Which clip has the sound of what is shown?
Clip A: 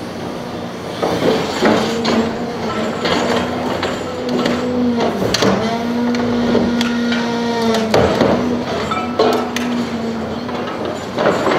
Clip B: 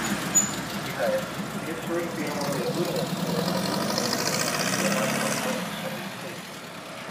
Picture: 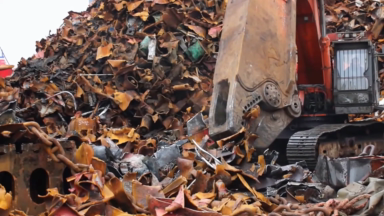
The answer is A